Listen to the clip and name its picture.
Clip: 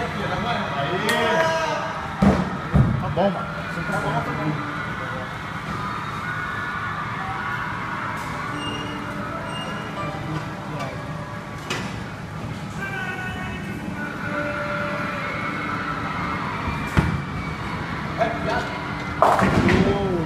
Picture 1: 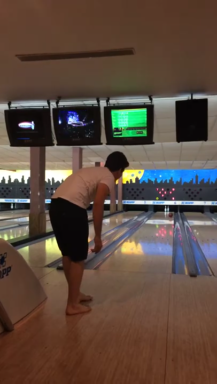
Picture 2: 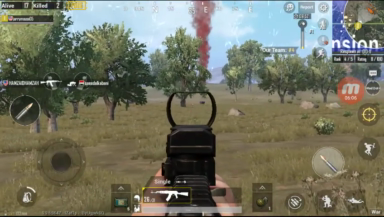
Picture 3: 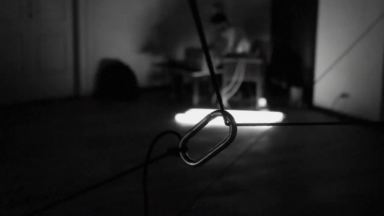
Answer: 1